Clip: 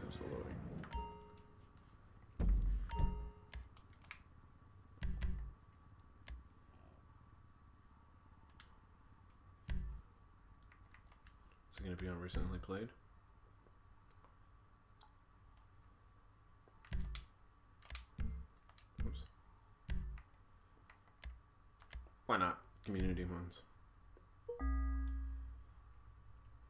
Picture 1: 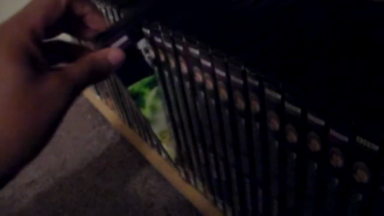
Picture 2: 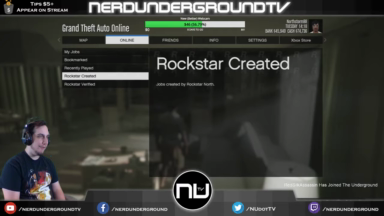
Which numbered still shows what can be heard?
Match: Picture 2